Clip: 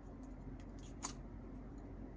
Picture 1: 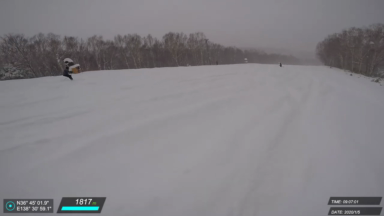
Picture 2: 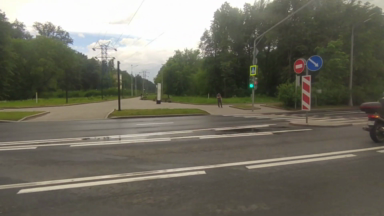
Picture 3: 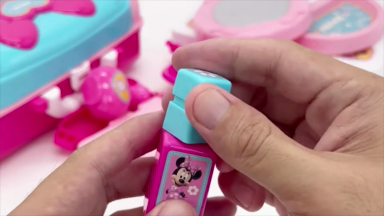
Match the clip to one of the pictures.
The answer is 3